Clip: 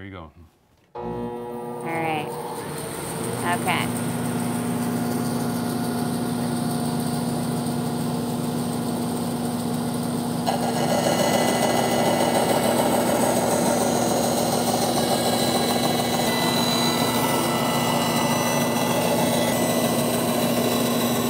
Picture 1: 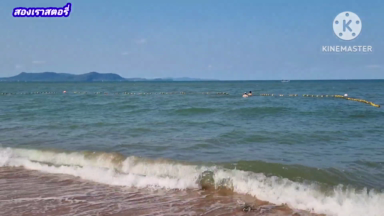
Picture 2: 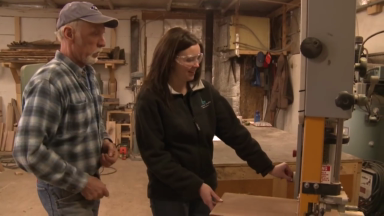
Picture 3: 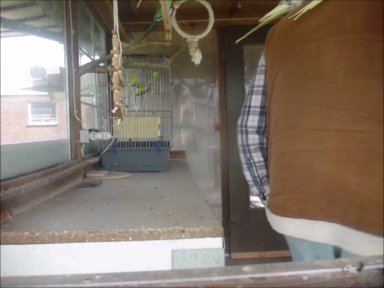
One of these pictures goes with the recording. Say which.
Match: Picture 2